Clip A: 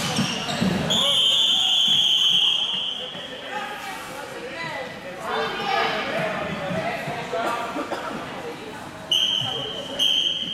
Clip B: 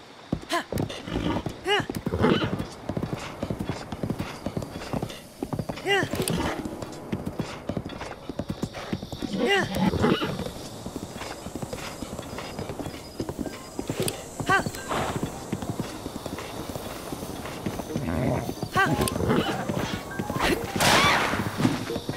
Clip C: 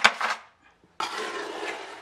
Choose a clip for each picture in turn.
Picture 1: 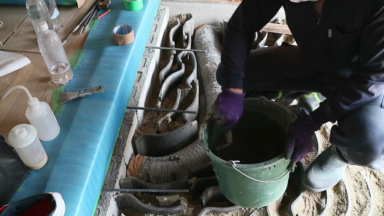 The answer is C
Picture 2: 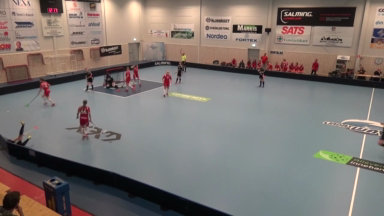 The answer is A